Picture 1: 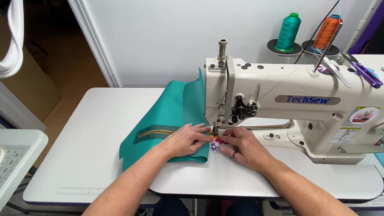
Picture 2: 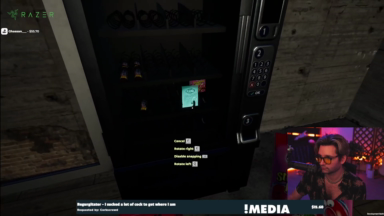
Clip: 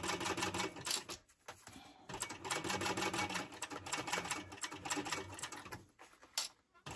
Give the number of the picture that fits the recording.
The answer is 1